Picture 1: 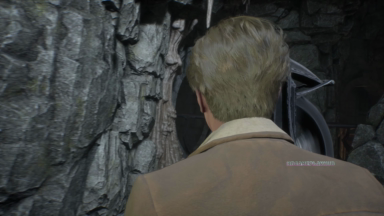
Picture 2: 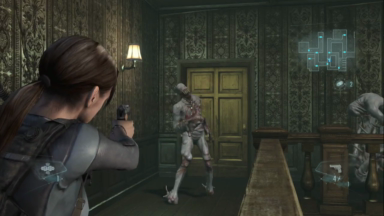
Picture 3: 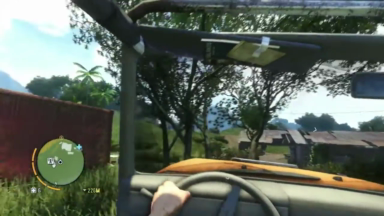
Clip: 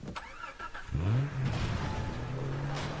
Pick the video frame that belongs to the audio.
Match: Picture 3